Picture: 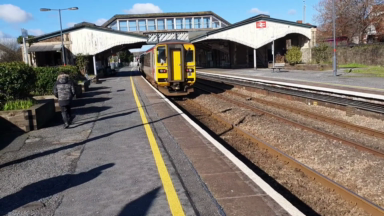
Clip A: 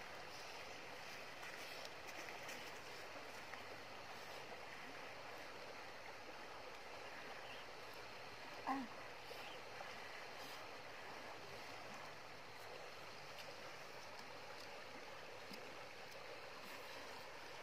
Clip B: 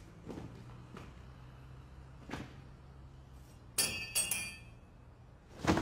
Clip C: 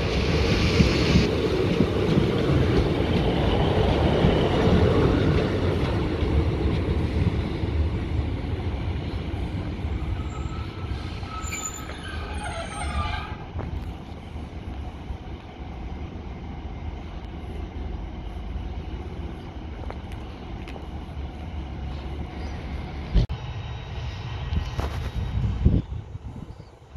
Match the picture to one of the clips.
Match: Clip C